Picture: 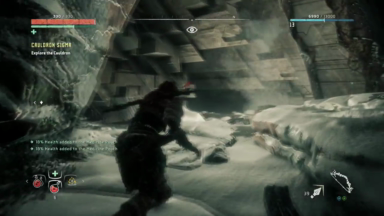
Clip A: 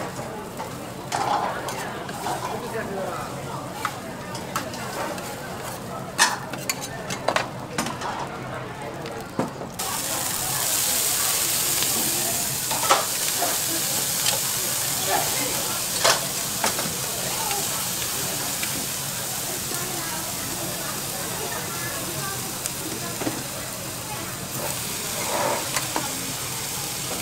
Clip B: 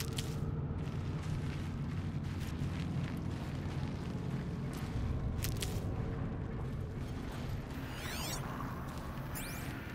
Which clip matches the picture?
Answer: B